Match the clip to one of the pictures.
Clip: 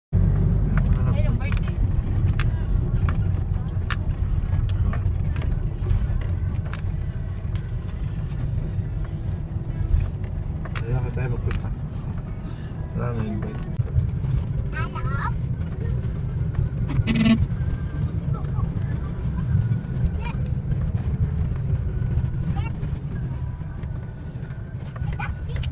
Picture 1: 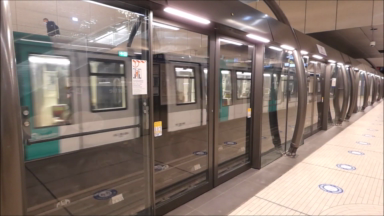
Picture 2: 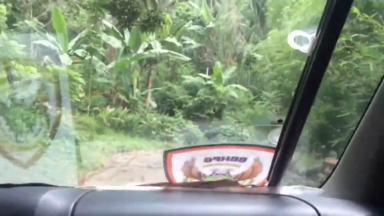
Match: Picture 2